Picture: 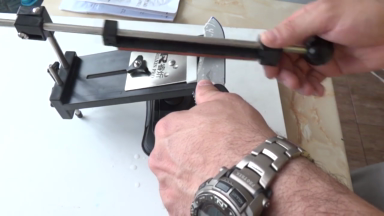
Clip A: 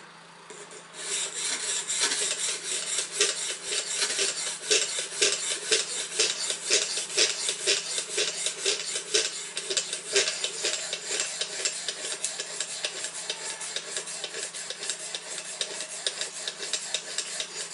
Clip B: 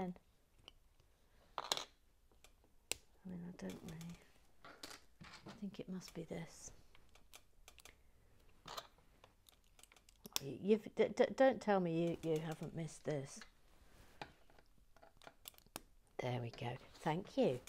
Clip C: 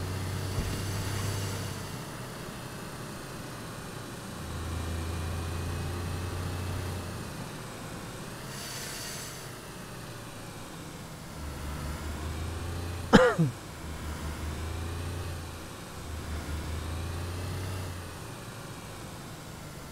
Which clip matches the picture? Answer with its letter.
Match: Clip A